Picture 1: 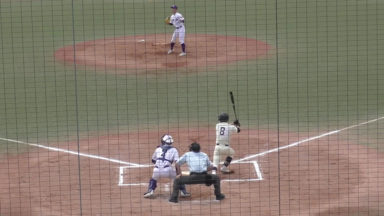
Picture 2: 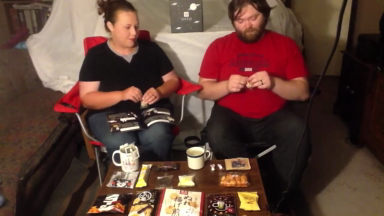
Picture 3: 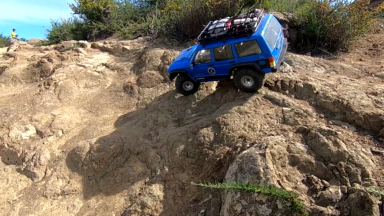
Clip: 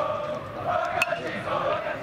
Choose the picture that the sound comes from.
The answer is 1